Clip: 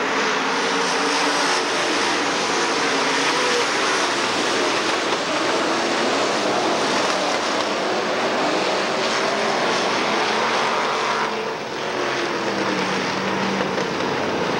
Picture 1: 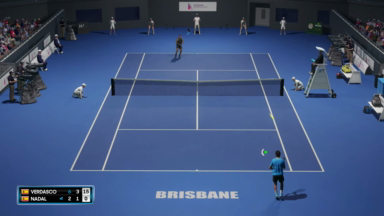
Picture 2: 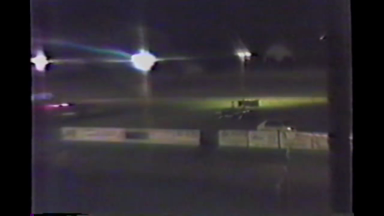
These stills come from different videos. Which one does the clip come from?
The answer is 2